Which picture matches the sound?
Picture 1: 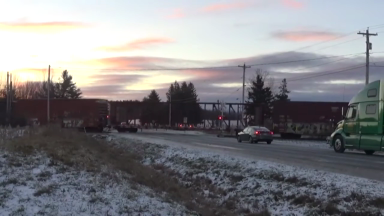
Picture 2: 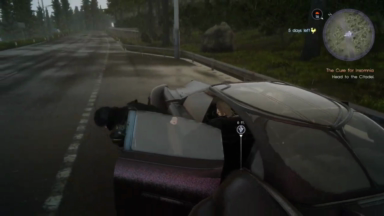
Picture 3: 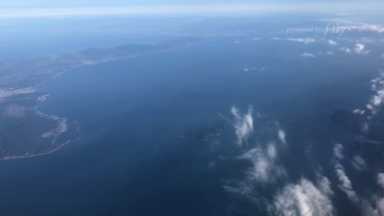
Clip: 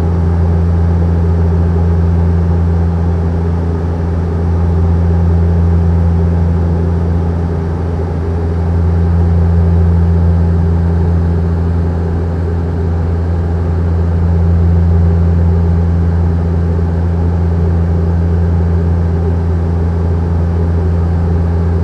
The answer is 3